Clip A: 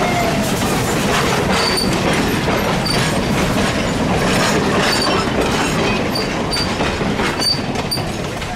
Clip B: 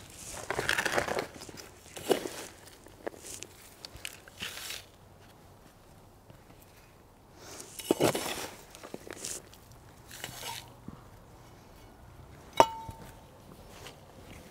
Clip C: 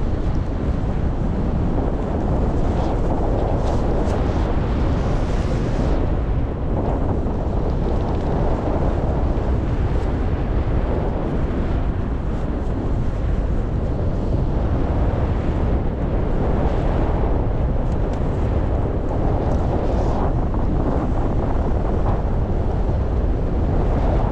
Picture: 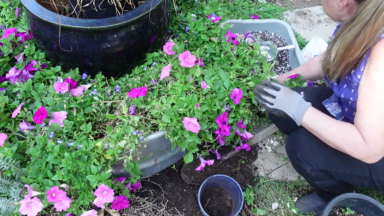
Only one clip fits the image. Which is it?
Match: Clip B